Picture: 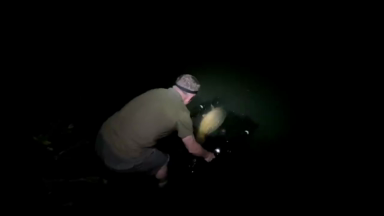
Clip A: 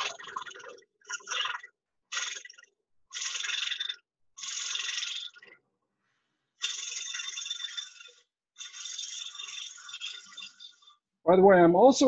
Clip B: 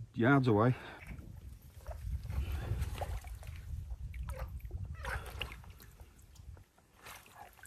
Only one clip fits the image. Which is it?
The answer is B